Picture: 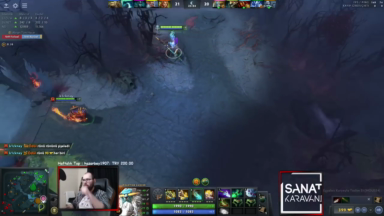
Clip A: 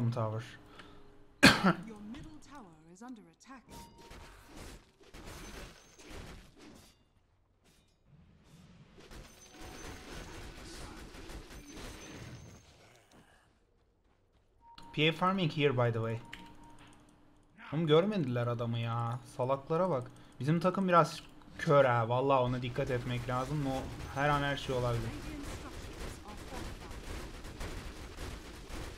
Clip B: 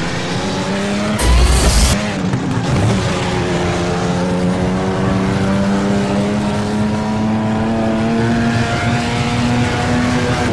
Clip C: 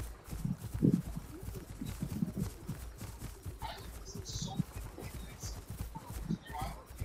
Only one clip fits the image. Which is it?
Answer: A